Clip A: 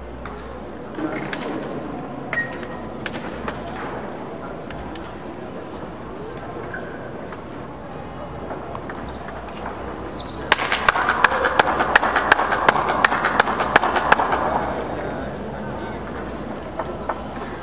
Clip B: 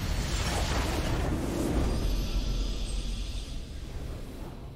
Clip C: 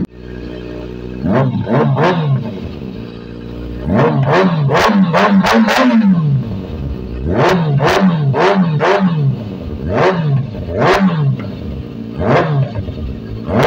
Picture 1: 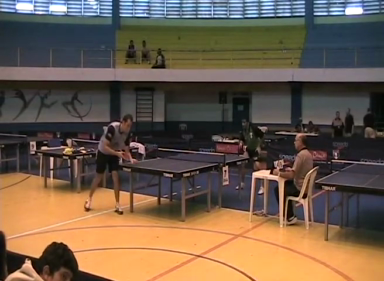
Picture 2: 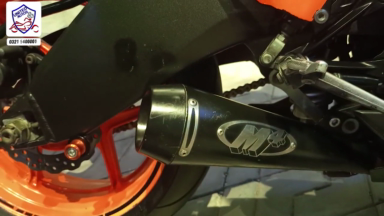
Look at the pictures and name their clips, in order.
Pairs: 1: A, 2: C